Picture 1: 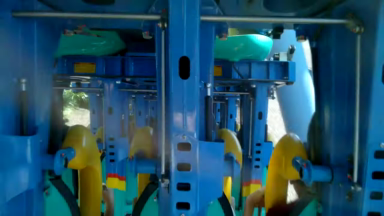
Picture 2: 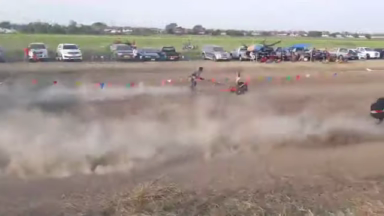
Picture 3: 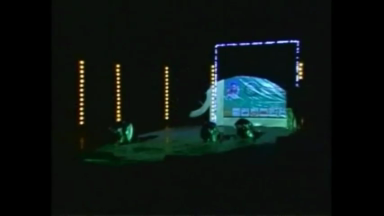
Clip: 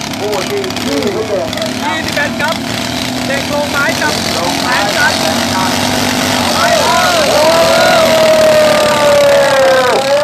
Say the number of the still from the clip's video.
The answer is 2